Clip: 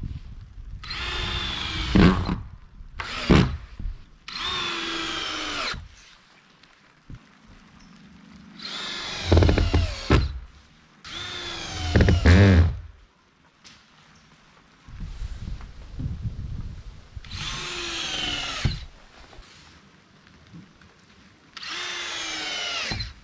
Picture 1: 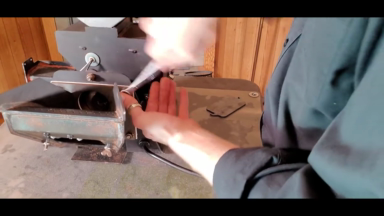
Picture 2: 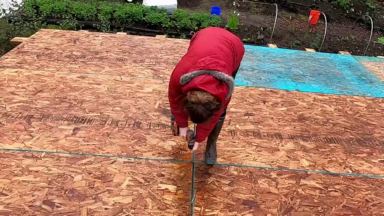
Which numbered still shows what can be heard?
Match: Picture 2